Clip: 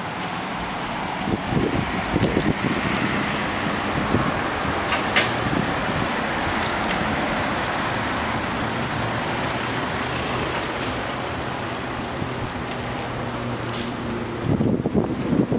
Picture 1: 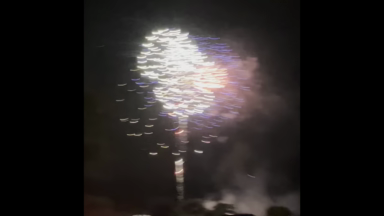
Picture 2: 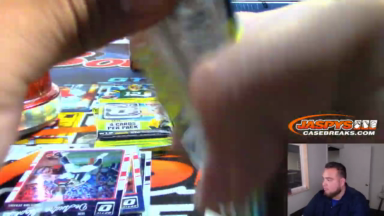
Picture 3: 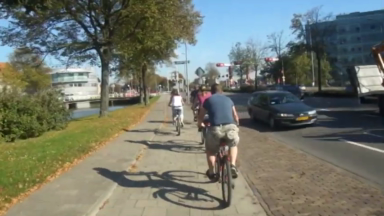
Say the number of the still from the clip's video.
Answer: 3